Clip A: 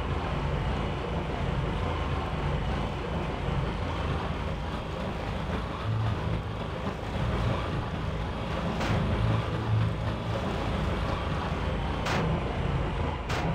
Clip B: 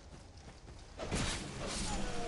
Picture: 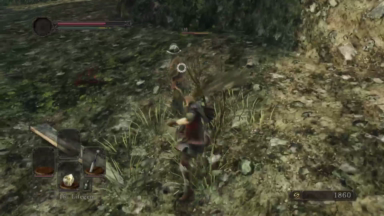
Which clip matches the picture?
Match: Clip B